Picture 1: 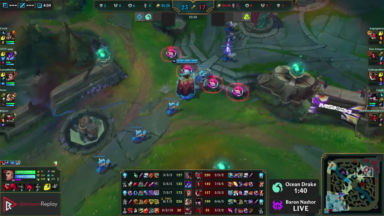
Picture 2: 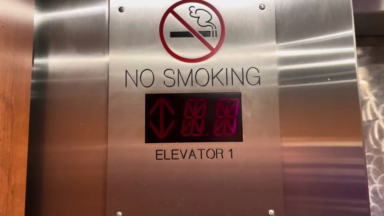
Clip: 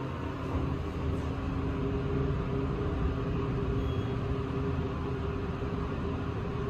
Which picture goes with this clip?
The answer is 2